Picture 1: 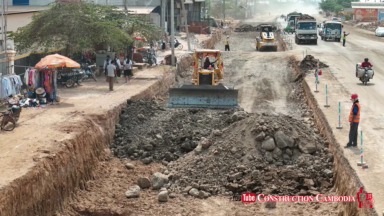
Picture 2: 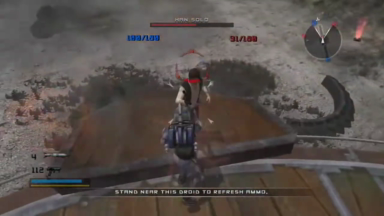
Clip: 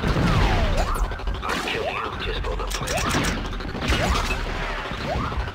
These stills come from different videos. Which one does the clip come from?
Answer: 2